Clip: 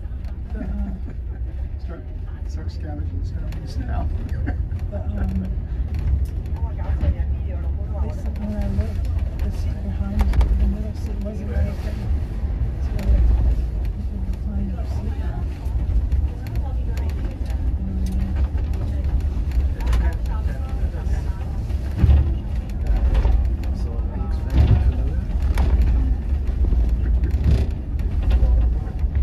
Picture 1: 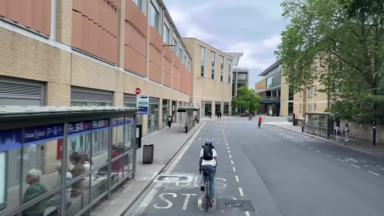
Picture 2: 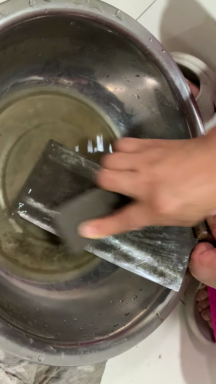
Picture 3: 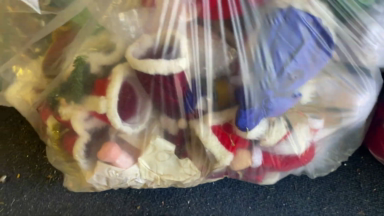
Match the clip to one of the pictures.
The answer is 1